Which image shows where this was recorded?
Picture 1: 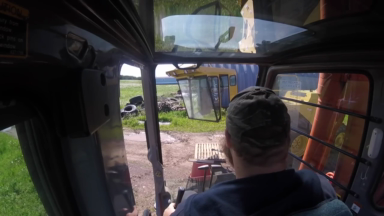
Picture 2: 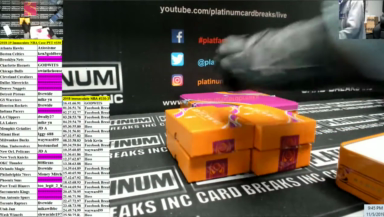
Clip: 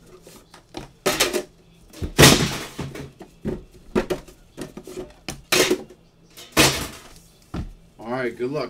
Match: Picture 2